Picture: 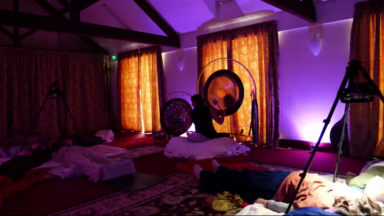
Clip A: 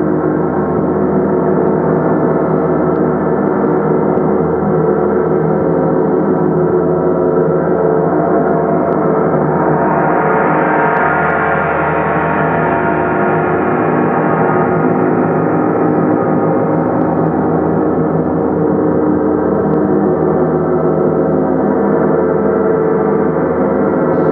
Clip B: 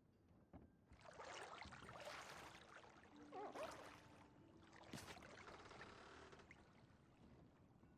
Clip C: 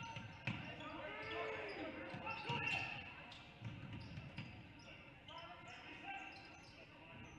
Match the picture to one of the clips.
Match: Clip A